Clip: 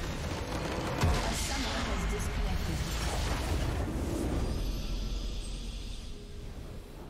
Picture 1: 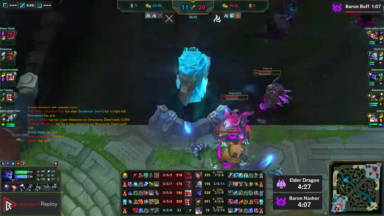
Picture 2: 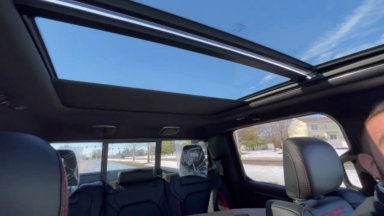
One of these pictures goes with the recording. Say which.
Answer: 1